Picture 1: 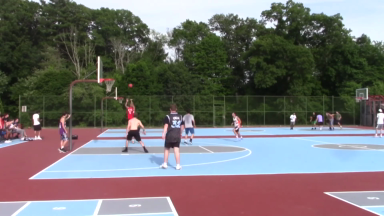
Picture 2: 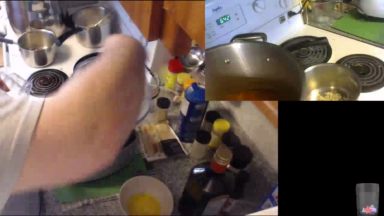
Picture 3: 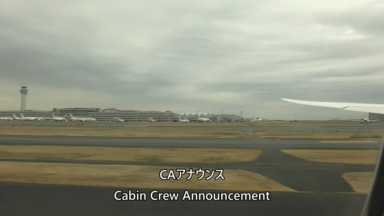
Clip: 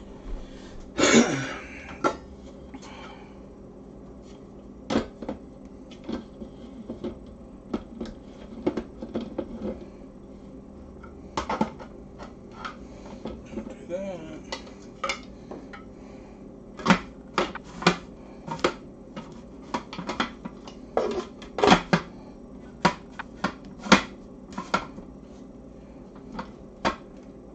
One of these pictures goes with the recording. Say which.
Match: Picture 2